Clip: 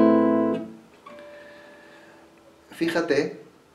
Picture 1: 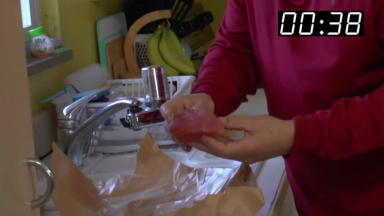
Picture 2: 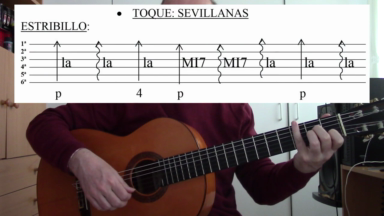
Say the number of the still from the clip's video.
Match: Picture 2